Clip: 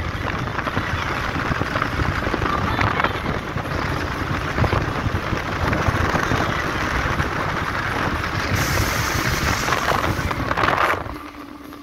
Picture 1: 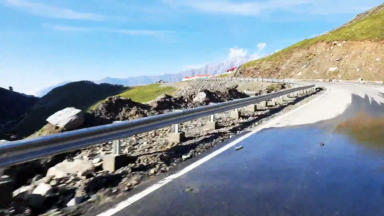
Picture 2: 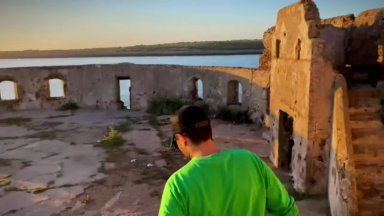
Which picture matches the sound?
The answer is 1